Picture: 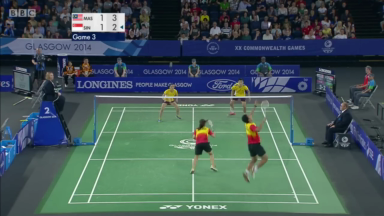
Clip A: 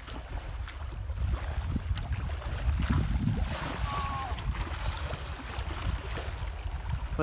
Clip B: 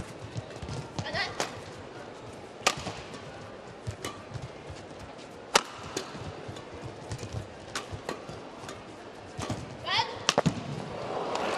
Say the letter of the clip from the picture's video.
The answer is B